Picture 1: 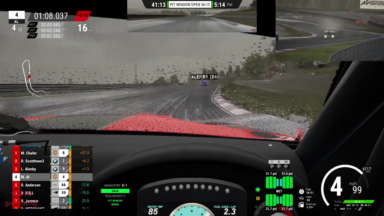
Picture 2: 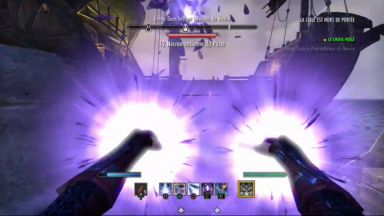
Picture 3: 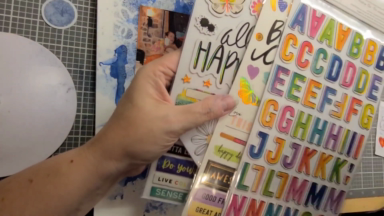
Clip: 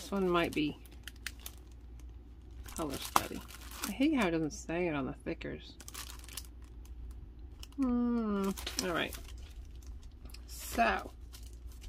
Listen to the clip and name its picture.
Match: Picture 3